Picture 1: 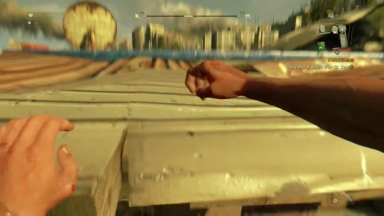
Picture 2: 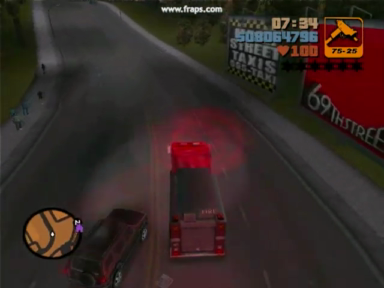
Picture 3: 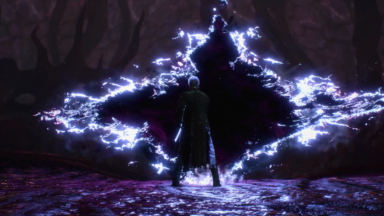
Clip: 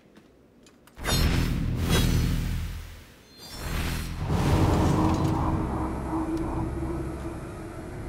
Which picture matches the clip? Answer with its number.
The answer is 3